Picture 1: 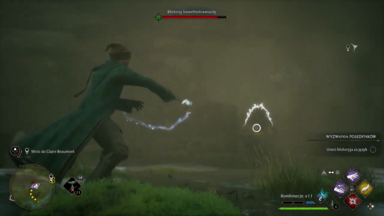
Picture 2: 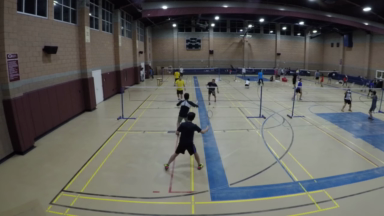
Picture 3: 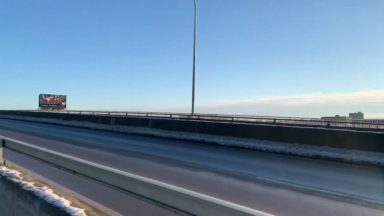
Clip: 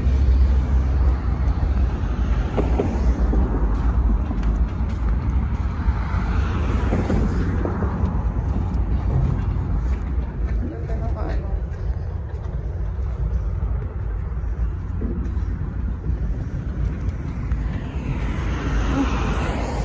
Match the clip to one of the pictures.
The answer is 3